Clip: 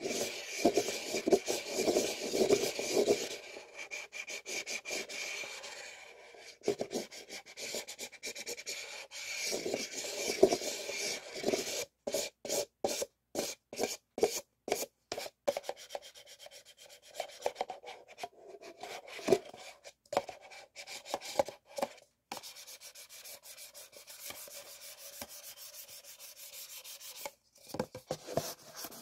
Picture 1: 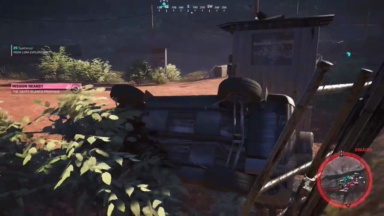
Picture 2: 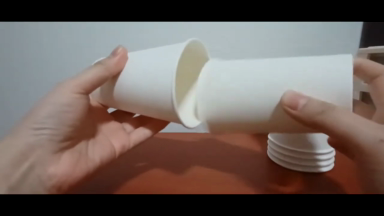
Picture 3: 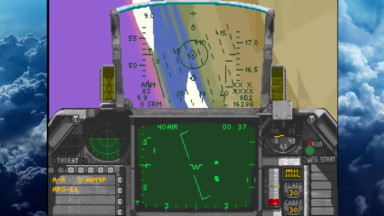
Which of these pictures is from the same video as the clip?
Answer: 2